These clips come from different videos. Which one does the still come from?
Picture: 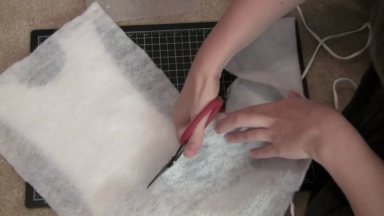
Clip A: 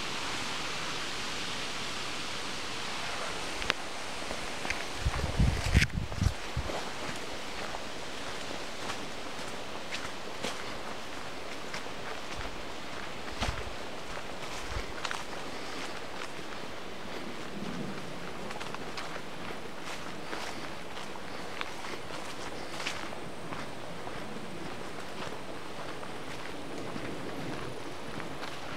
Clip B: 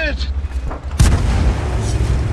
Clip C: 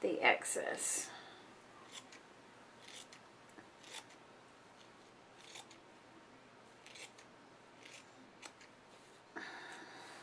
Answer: C